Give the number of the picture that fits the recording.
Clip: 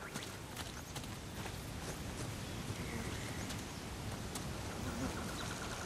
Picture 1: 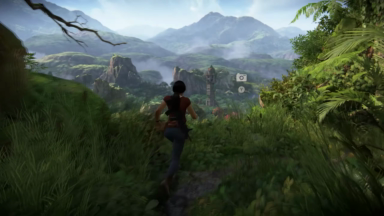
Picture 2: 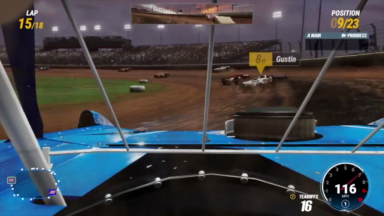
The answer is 1